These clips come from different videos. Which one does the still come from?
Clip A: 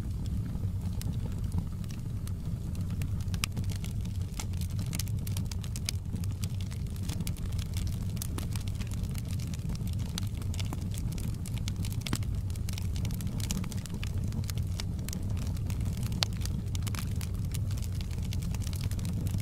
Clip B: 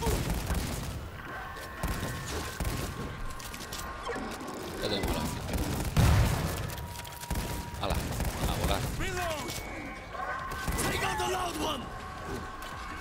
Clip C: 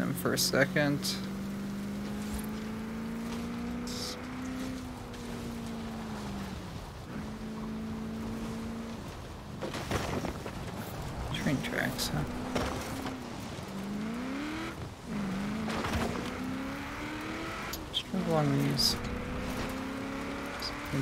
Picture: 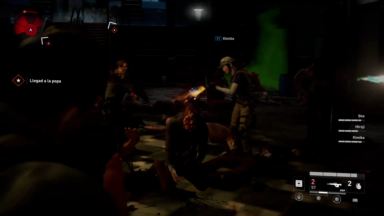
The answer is B